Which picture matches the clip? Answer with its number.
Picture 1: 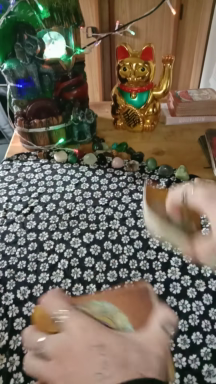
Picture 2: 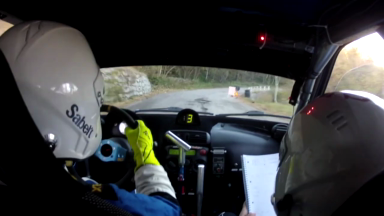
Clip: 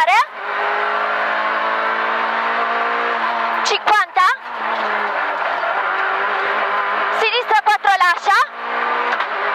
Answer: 2